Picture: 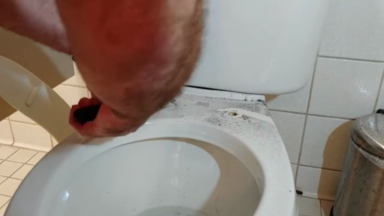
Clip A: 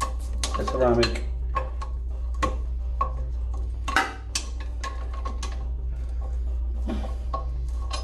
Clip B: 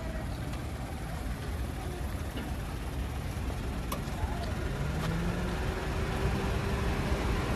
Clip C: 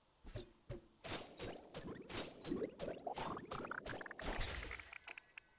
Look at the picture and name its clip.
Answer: A